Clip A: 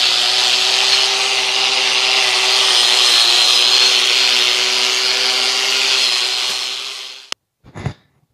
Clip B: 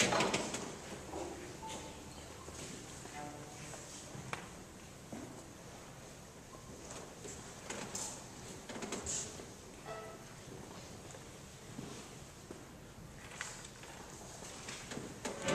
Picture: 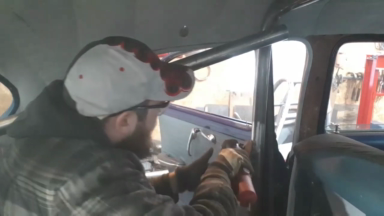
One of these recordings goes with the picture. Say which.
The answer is A